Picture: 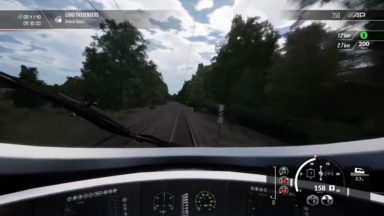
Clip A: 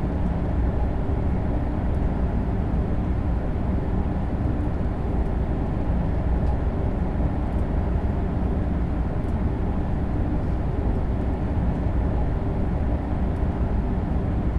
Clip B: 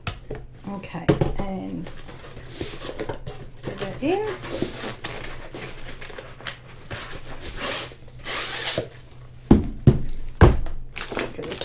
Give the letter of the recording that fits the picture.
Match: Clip A